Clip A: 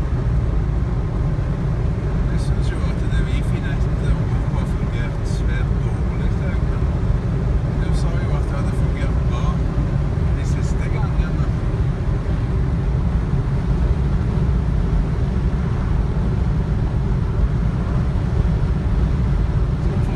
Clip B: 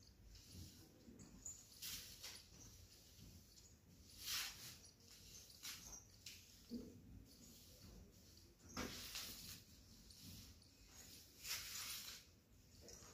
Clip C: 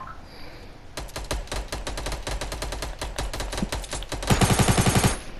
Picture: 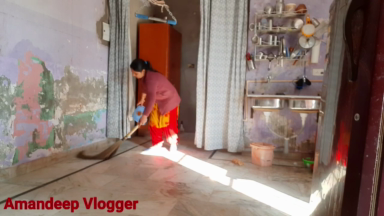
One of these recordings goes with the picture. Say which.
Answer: B